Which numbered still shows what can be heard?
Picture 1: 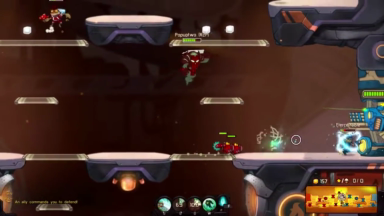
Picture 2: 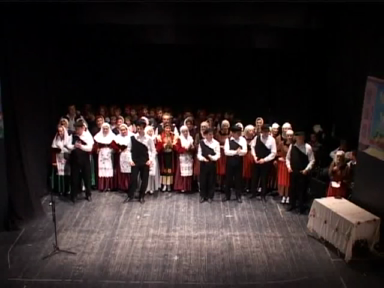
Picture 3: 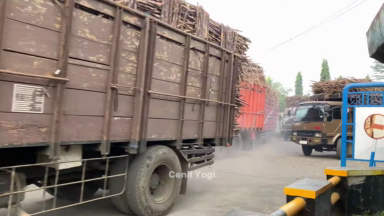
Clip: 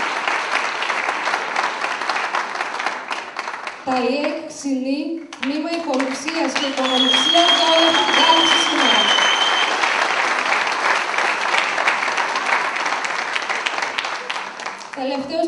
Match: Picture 2